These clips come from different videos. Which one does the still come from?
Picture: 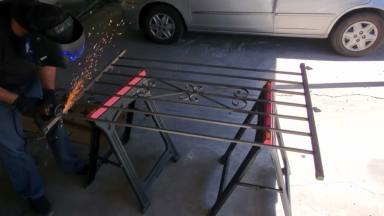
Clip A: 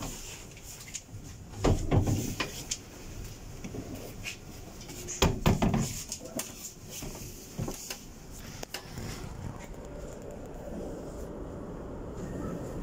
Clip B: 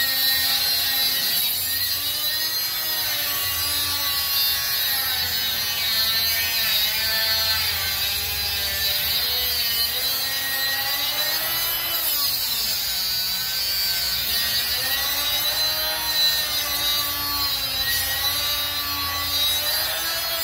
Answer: B